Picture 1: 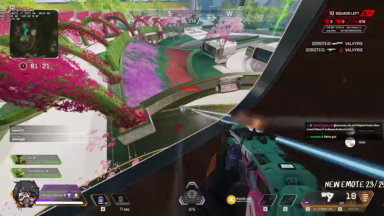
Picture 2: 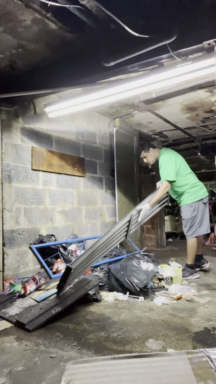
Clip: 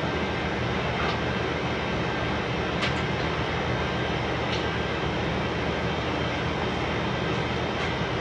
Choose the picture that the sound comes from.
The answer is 2